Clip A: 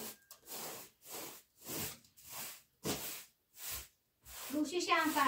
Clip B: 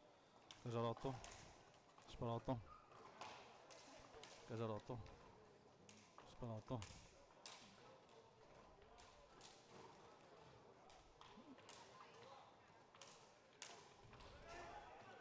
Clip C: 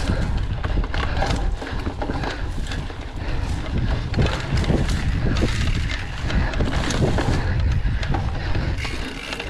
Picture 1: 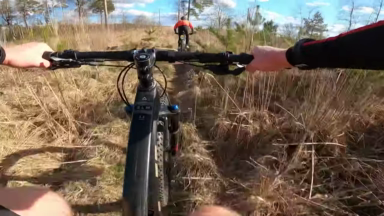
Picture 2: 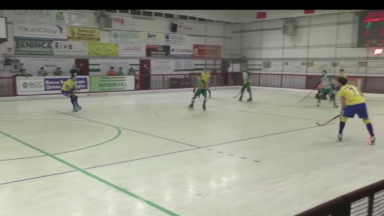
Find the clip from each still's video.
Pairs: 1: C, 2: B